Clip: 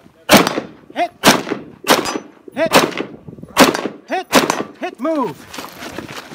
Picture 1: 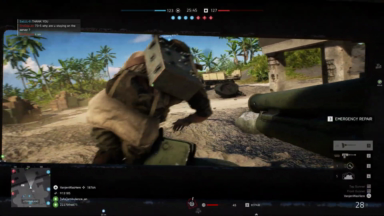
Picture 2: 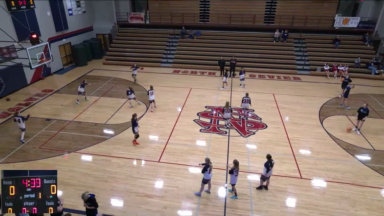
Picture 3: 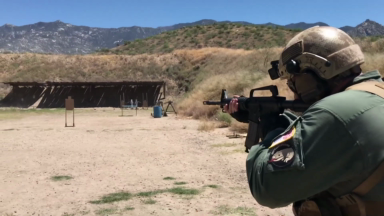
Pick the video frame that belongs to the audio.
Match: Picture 3